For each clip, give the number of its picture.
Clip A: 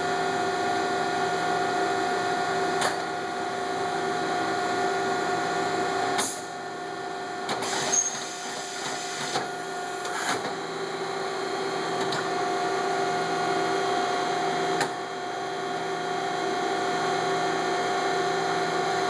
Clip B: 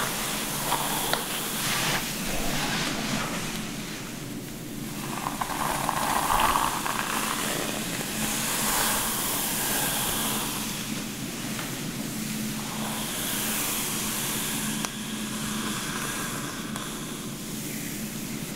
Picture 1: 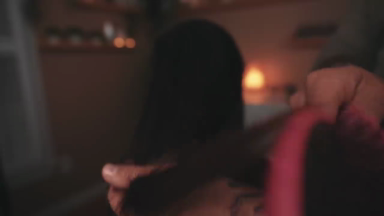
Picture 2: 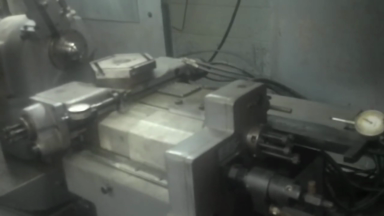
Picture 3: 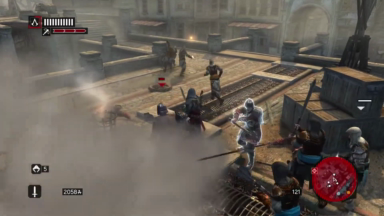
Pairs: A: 2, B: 1